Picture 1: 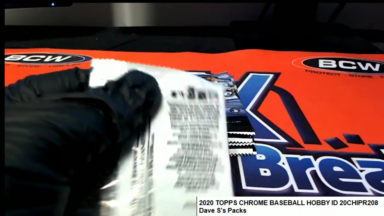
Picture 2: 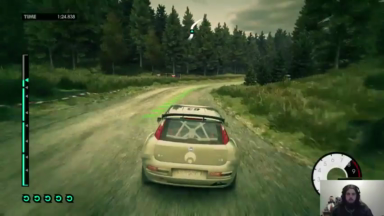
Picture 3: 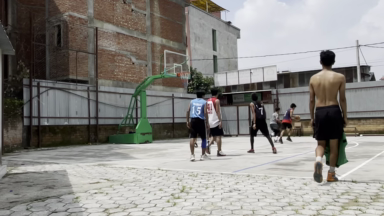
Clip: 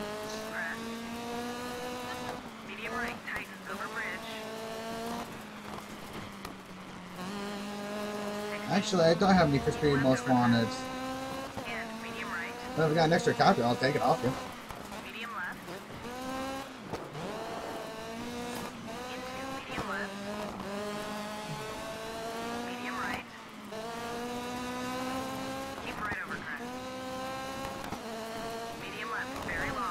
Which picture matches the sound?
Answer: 2